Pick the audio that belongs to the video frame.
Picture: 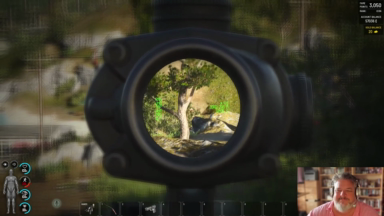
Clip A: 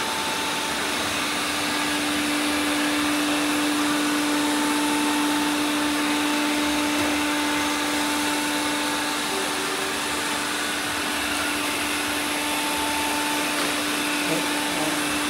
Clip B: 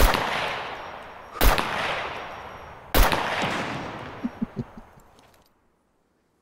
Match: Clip B